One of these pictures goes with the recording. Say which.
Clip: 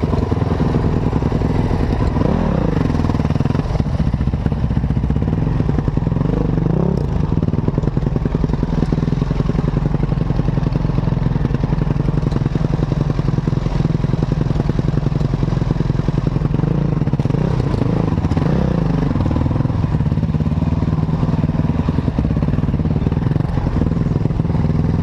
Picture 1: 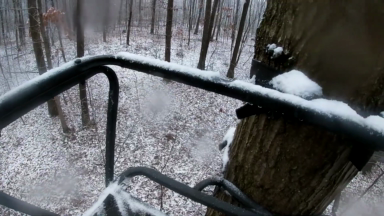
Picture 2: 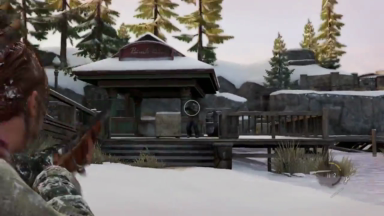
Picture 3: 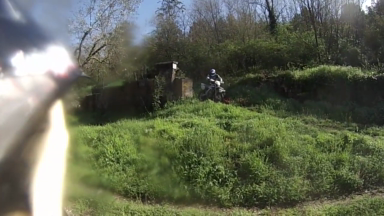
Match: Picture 3